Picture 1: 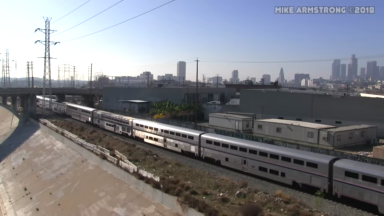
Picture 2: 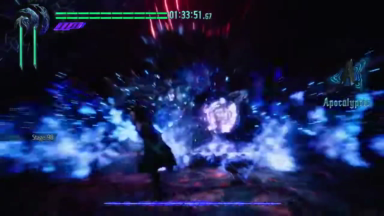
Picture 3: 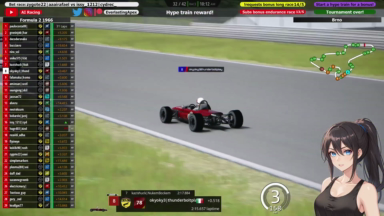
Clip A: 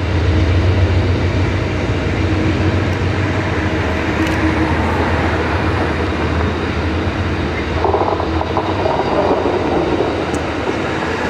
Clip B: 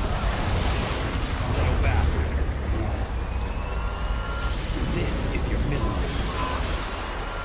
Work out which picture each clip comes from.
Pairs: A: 1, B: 2